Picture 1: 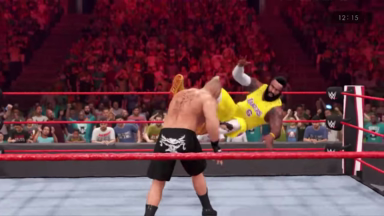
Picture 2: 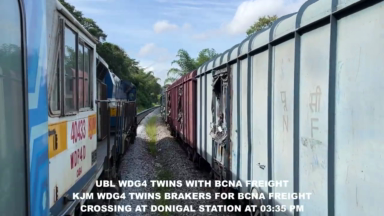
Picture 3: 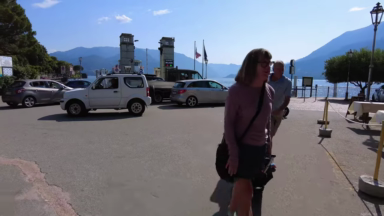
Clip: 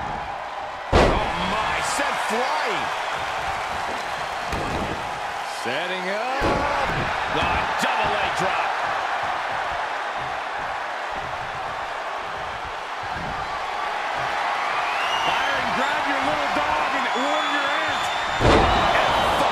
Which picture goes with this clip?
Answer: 1